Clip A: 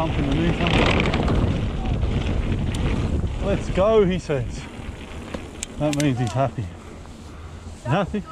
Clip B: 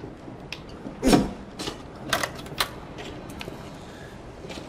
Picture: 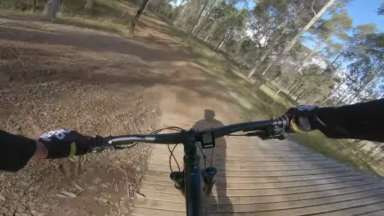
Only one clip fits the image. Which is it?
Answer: A